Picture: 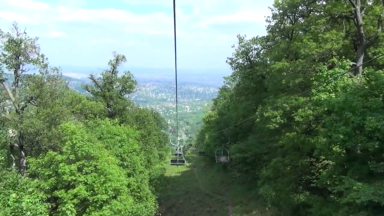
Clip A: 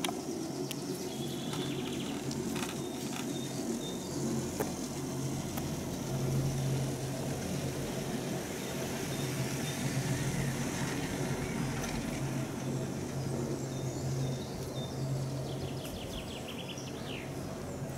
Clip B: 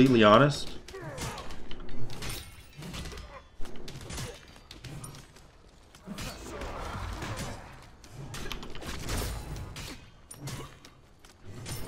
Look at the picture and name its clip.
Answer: A